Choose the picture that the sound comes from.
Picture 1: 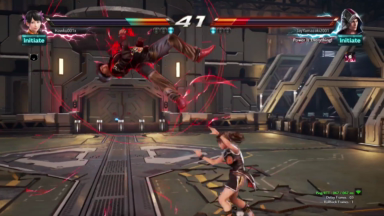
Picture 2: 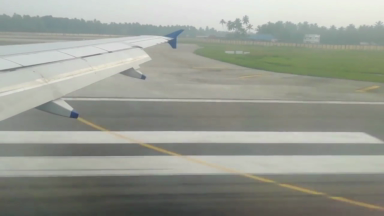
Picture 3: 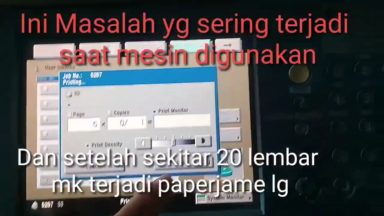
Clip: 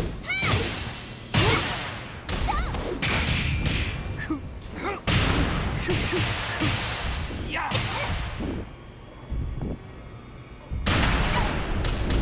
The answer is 1